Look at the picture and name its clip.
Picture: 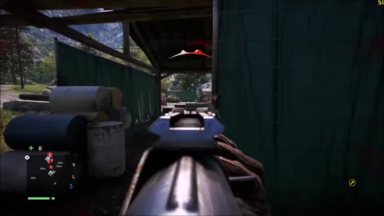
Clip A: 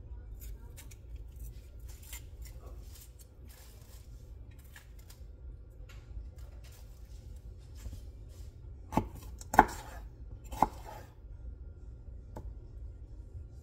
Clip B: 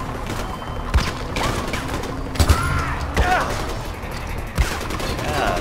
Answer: B